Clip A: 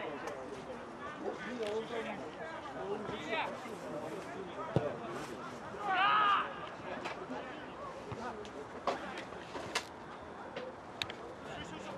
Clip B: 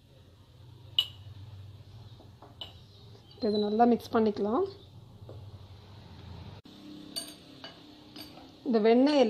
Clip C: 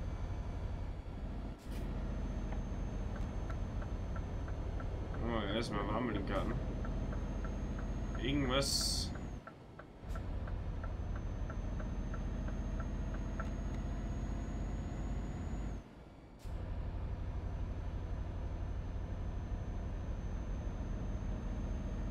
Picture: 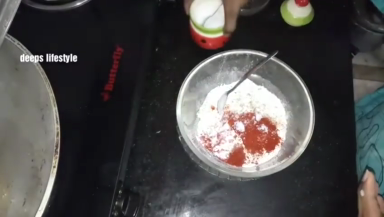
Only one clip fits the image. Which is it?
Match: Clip B